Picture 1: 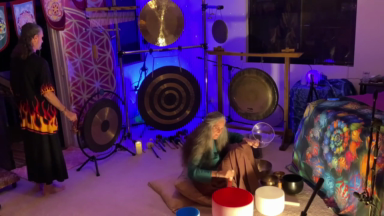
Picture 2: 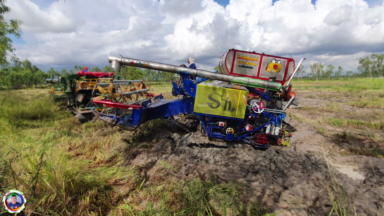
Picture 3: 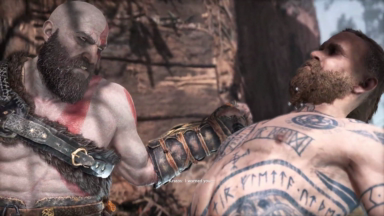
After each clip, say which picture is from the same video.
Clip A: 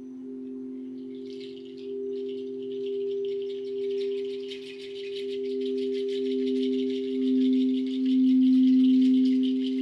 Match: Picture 1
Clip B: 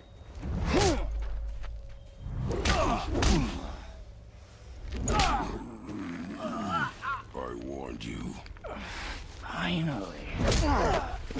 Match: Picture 3